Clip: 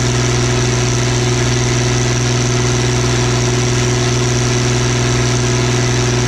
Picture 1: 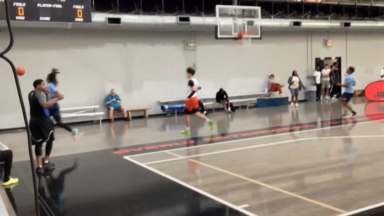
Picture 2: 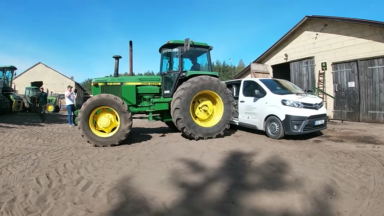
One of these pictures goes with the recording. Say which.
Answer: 2